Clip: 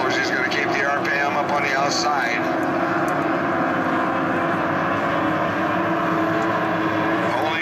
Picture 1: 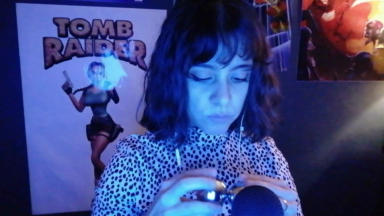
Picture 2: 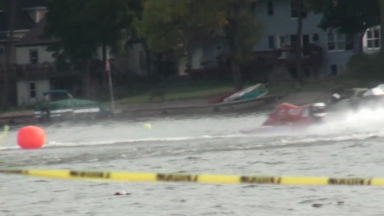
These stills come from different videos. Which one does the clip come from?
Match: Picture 2